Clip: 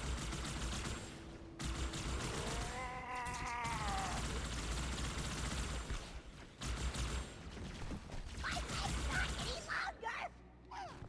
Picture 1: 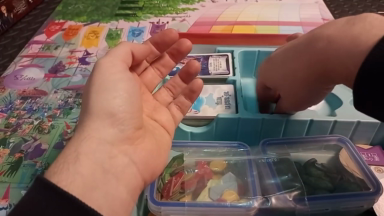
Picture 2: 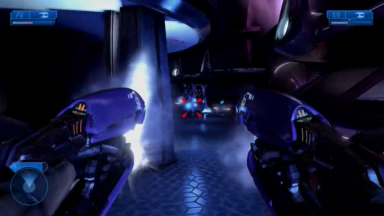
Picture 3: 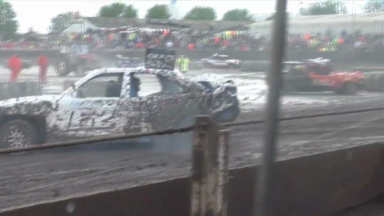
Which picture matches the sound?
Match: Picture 2